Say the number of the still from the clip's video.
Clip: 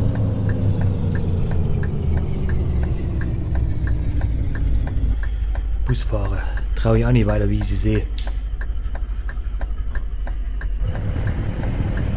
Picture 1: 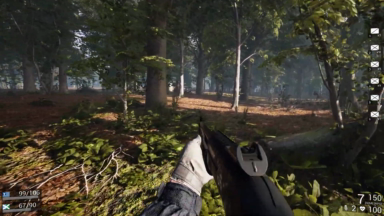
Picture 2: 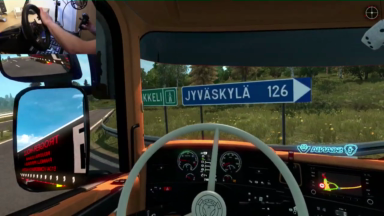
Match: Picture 2